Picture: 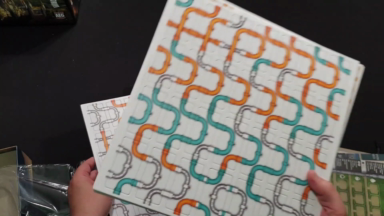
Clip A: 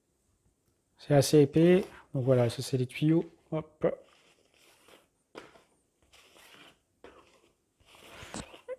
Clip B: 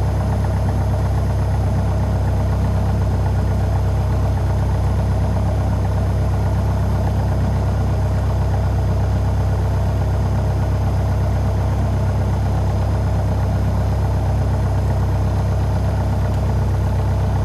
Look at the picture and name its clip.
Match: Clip A